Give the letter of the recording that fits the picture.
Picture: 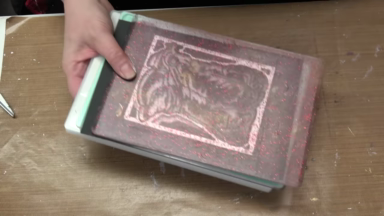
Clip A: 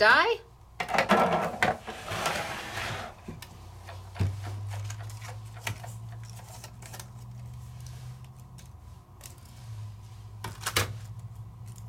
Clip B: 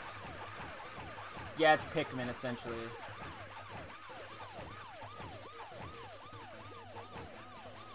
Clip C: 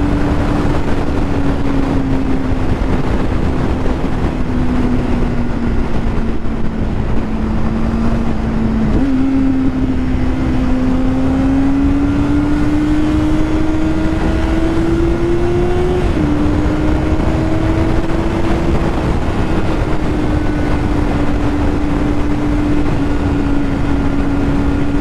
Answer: A